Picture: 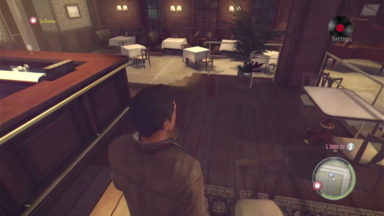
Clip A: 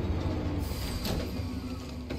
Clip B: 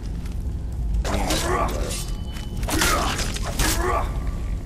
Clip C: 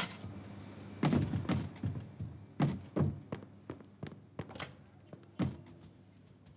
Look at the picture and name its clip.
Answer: C